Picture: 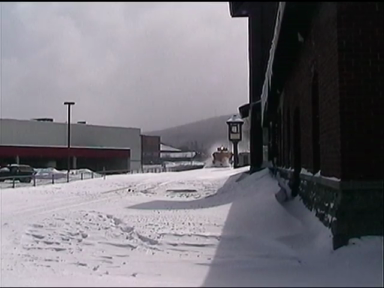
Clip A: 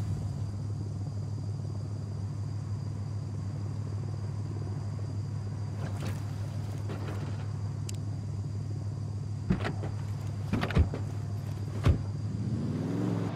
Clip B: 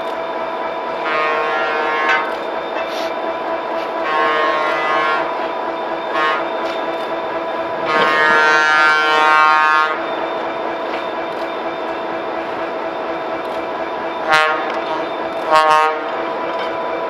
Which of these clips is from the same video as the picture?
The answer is B